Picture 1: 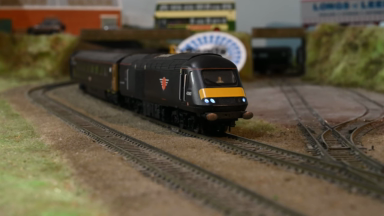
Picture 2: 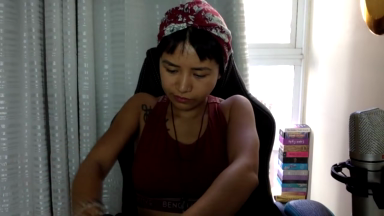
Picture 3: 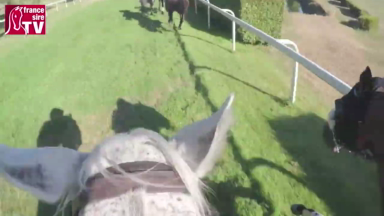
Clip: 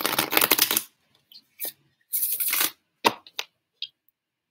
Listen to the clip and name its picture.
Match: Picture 2